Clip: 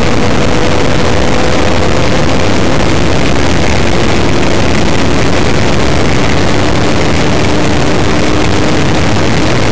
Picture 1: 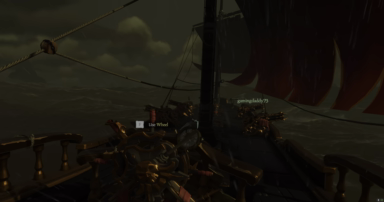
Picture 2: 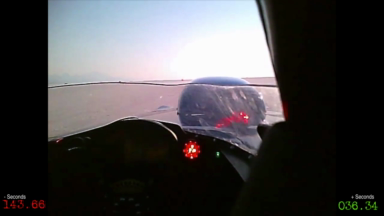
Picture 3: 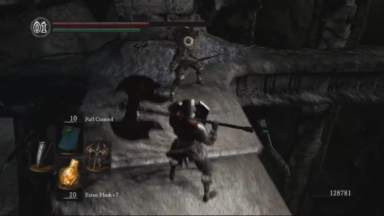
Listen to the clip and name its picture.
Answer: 2